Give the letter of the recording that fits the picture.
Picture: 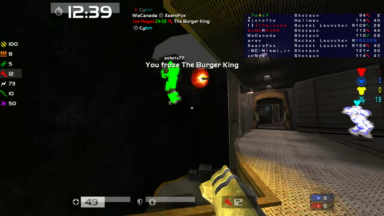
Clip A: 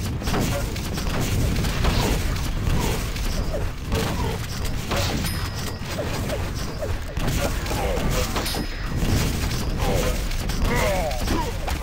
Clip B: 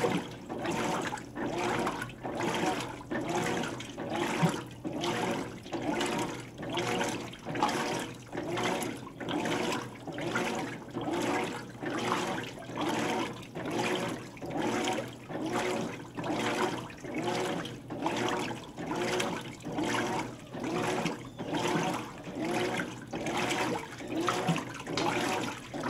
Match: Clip A